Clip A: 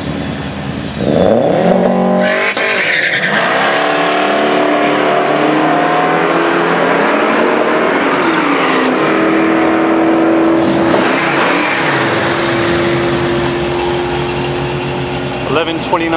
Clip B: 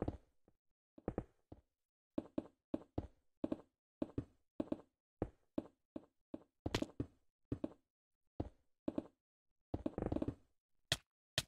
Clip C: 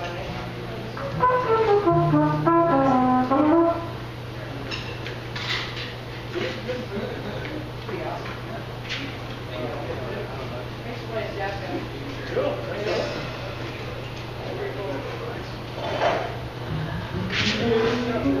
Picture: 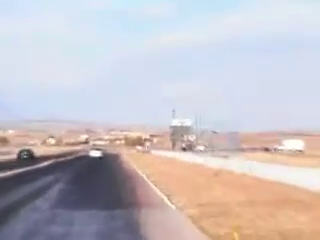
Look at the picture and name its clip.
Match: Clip A